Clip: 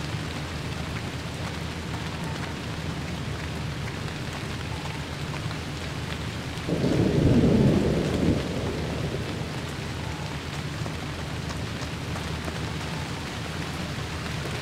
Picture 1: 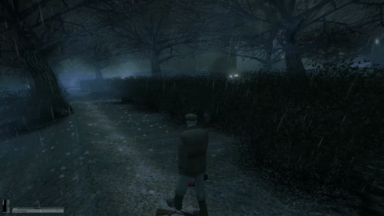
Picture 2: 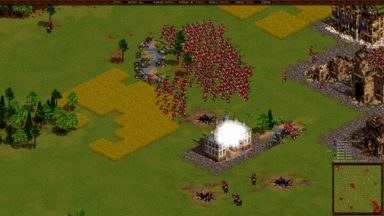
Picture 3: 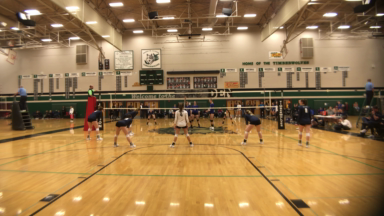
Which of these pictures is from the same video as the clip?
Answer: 1